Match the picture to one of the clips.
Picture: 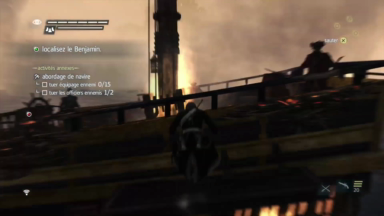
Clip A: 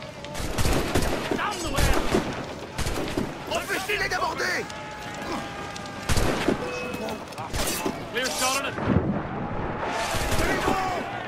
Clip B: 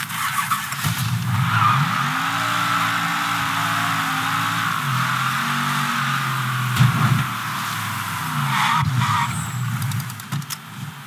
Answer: A